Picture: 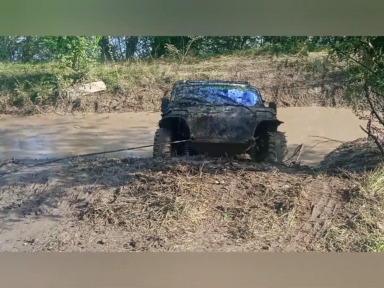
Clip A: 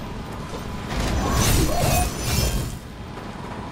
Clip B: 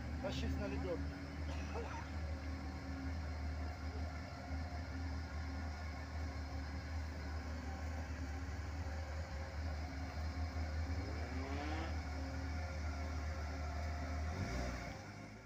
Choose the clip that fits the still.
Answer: B